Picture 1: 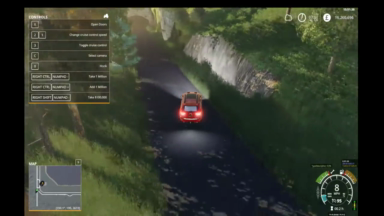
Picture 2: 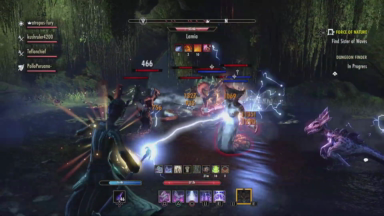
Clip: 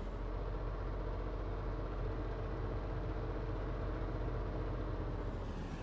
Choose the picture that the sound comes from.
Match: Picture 1